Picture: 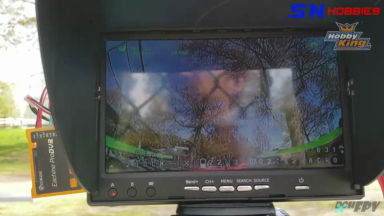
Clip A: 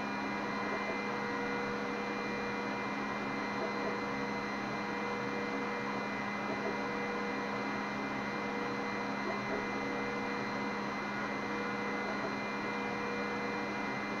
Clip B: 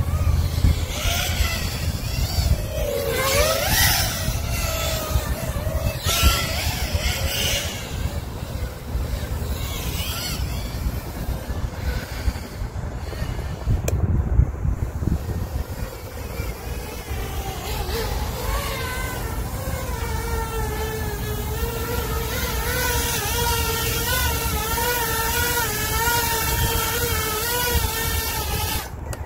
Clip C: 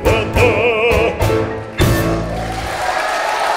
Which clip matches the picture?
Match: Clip B